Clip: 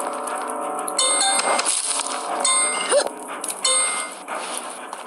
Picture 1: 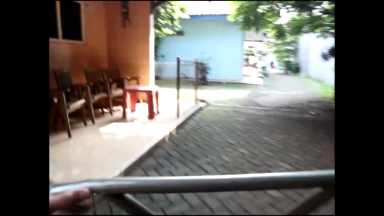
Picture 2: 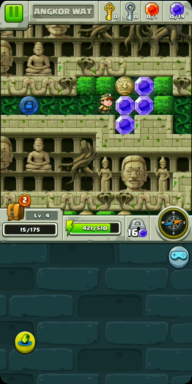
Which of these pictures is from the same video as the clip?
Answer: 2